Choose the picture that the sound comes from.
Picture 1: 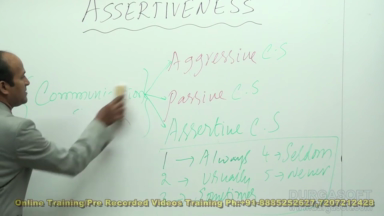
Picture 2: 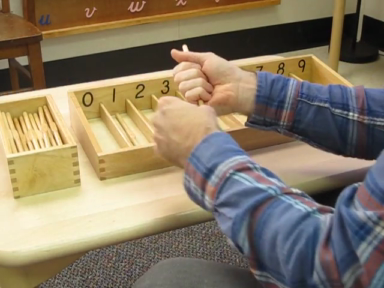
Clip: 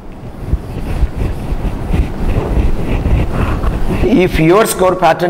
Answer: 1